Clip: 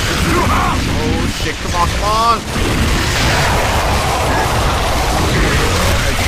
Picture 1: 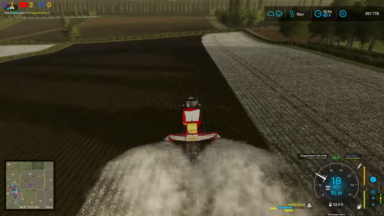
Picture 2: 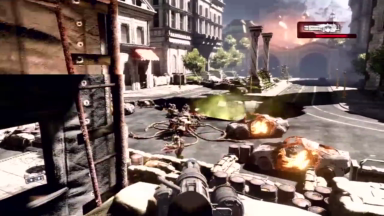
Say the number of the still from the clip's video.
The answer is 2